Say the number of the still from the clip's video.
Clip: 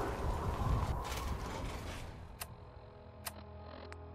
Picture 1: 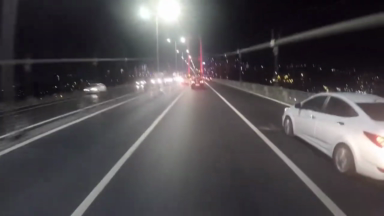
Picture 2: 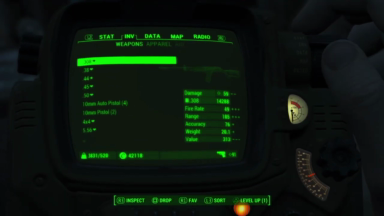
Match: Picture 2